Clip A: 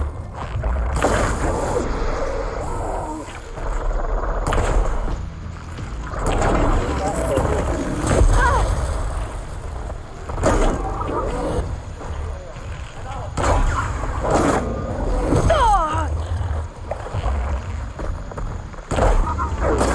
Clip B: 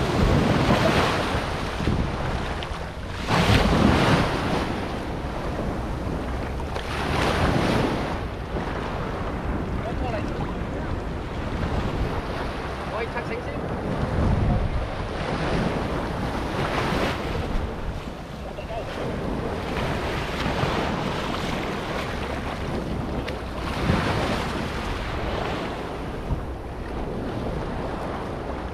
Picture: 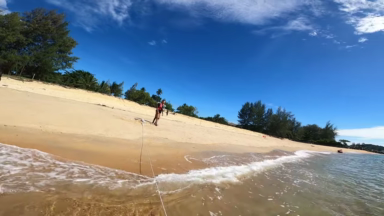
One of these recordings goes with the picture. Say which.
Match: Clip B